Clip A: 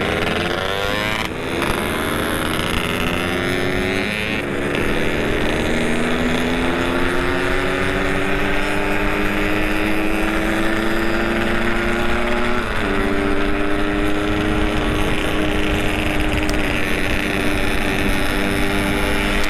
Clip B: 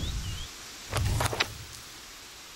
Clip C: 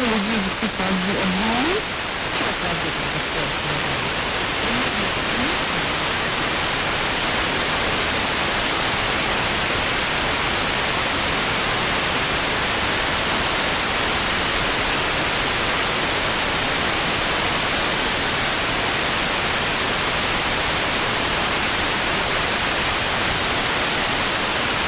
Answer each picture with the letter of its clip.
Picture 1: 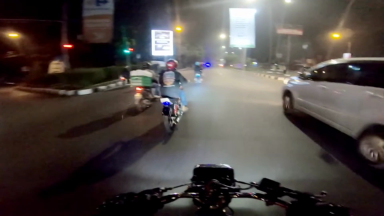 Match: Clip A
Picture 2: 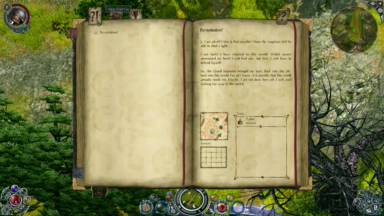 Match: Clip B